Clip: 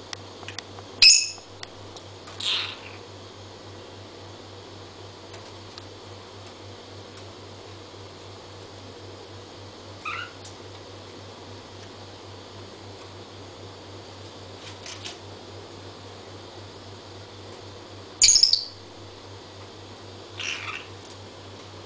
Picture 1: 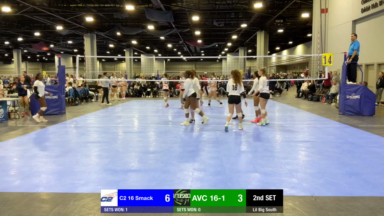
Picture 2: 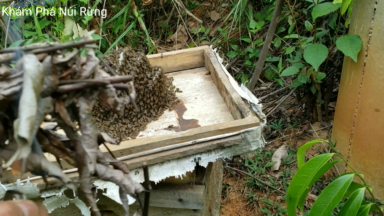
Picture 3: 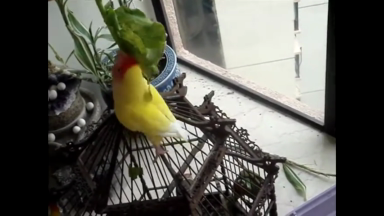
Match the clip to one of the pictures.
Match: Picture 3